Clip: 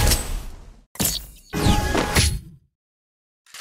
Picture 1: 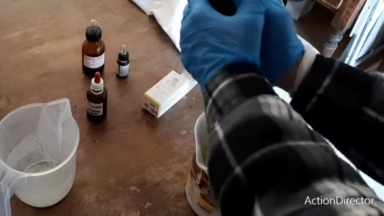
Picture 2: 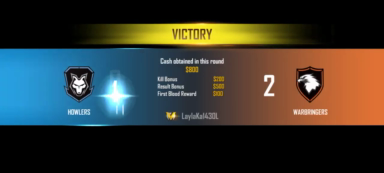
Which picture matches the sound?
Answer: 2